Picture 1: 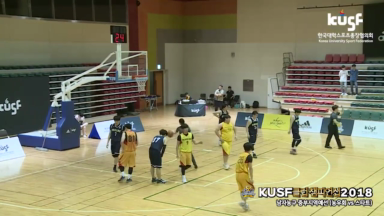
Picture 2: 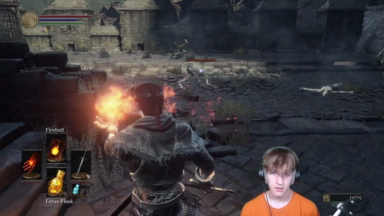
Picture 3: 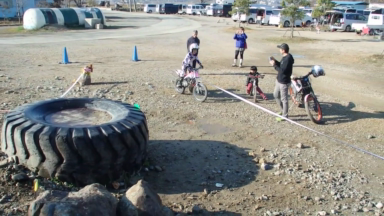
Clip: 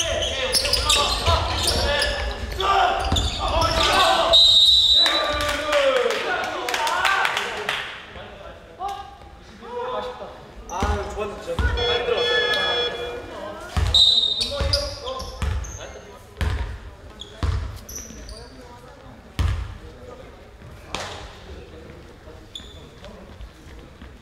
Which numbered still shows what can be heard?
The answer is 1